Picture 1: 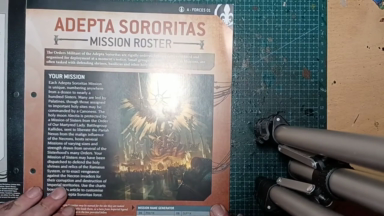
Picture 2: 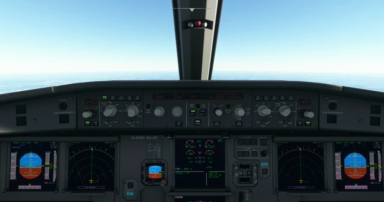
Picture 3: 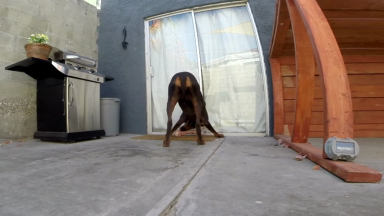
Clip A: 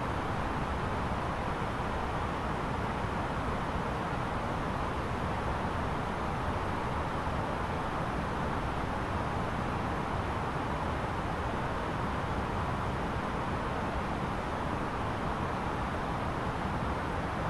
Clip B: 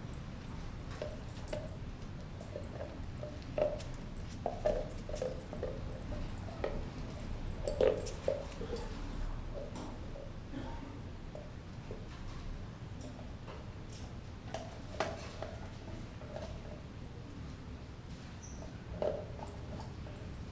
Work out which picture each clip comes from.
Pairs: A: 2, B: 3